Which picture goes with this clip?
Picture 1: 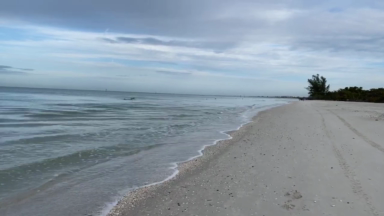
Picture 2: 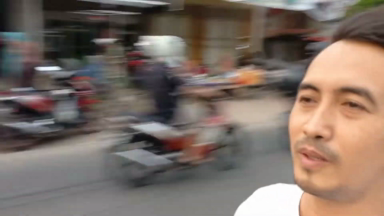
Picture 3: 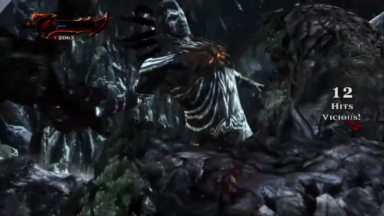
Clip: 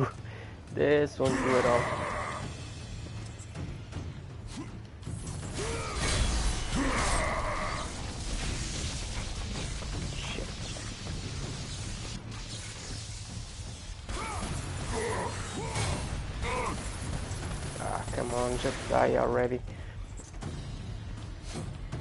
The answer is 3